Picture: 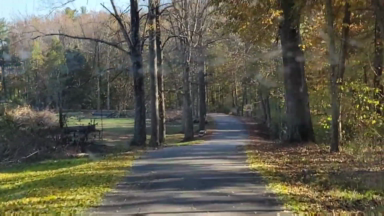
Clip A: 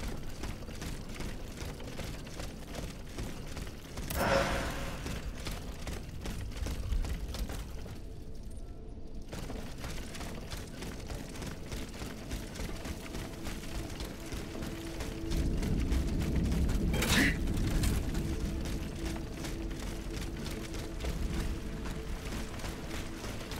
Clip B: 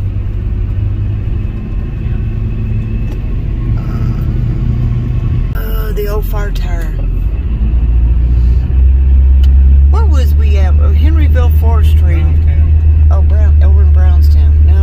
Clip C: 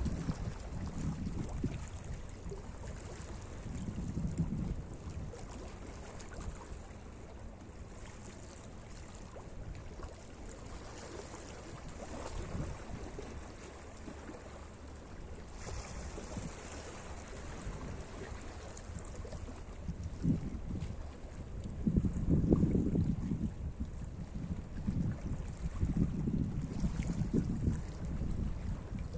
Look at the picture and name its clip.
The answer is B